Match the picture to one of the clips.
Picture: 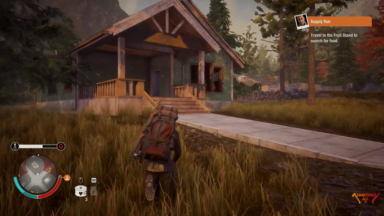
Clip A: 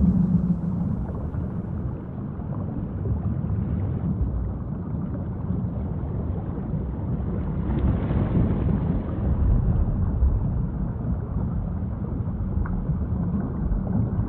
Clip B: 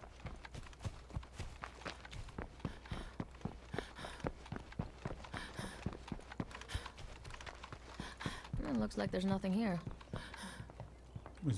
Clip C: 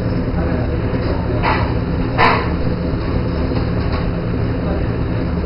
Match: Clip B